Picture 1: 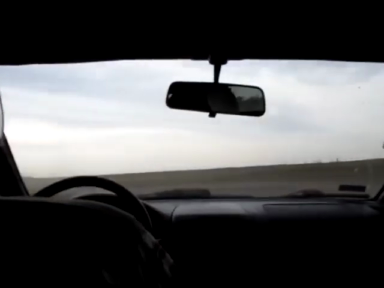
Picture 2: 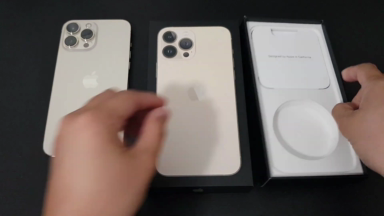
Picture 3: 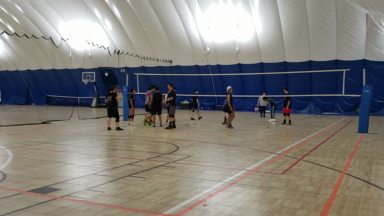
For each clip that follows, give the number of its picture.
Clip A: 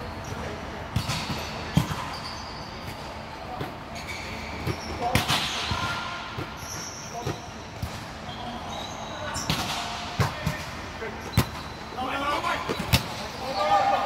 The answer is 3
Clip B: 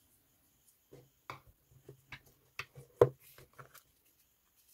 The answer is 2